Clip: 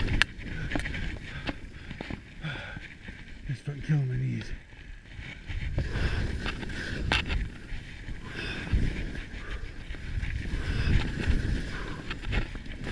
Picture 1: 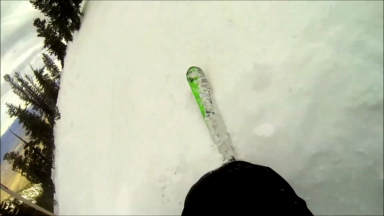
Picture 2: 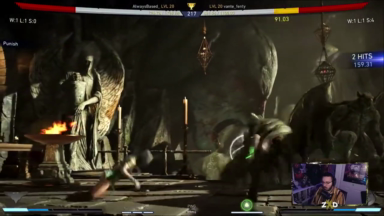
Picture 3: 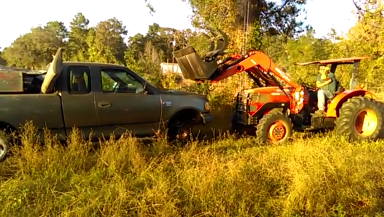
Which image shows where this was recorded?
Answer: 1